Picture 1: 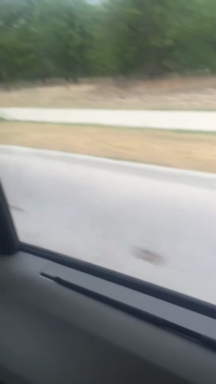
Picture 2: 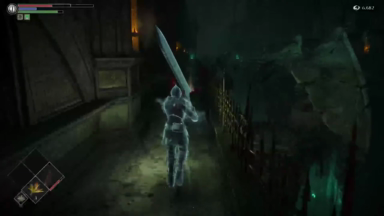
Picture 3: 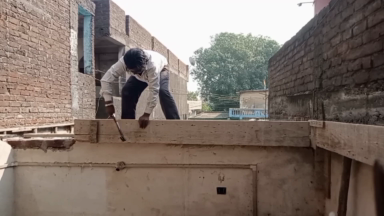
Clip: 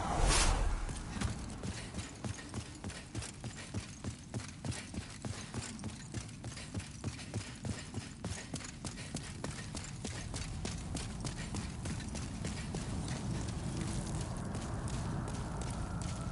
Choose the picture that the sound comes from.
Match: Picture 2